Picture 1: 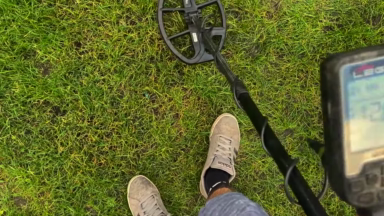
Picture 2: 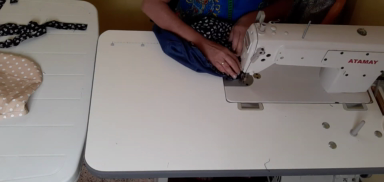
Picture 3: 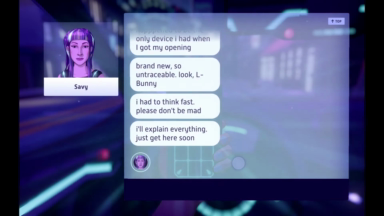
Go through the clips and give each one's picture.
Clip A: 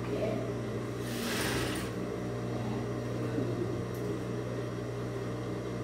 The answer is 2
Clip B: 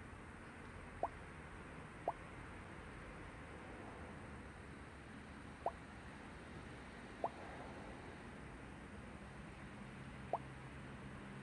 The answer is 3